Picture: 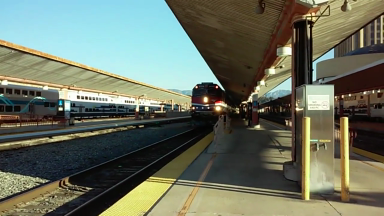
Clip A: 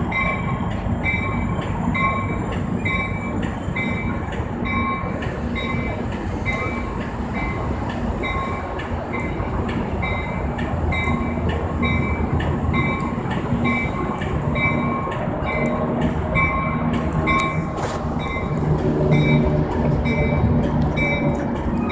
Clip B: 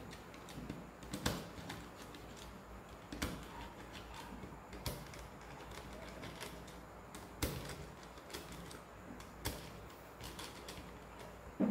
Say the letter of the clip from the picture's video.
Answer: A